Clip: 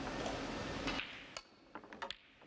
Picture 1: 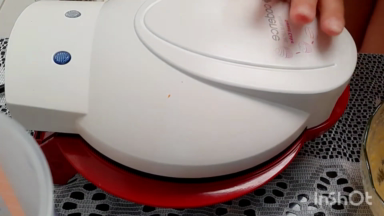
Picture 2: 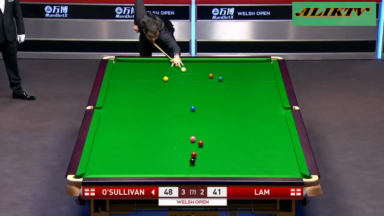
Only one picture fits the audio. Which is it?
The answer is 2